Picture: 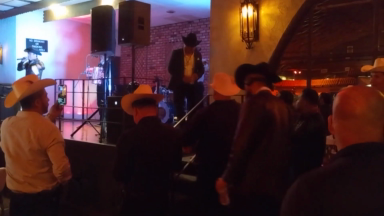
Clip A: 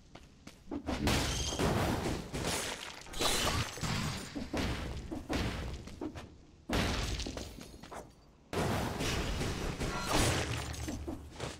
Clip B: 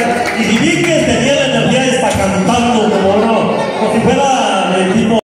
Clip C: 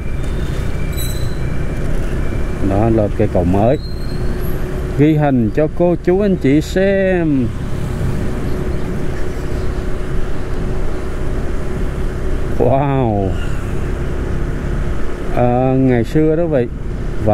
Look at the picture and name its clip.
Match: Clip B